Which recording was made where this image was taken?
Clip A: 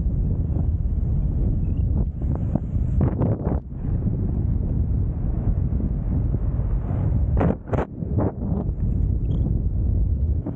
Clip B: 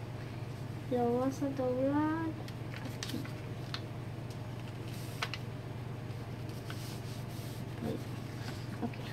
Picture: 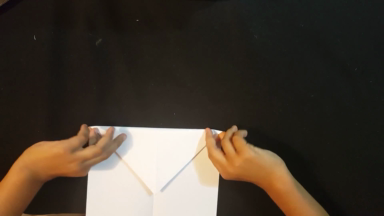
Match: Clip B